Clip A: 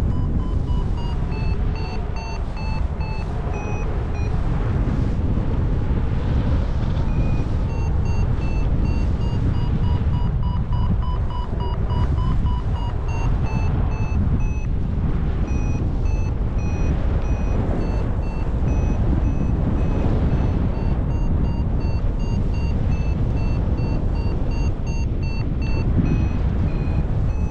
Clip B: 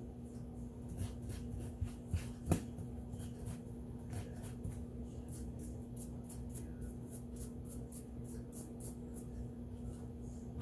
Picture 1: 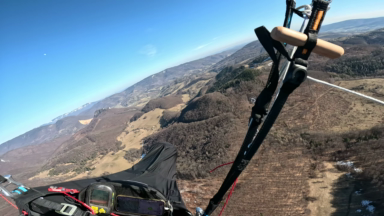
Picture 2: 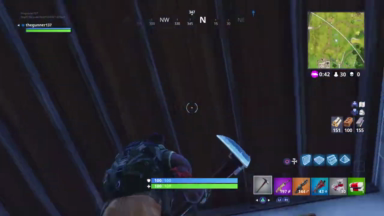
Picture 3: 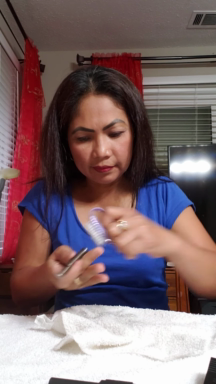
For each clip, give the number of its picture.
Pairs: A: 1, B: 3